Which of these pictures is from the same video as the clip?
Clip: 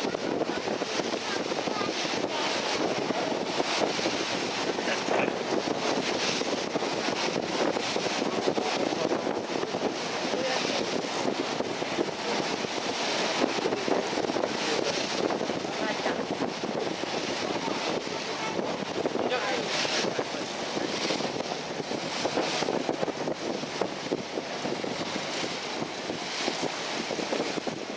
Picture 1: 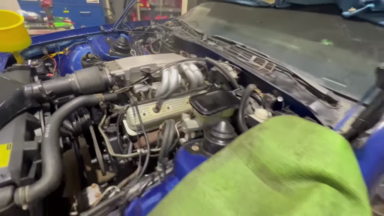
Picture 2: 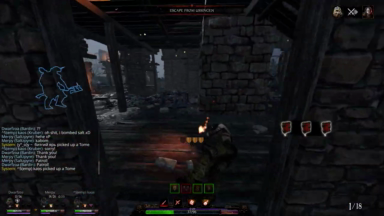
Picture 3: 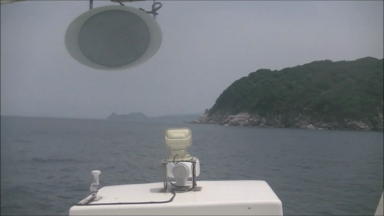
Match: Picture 3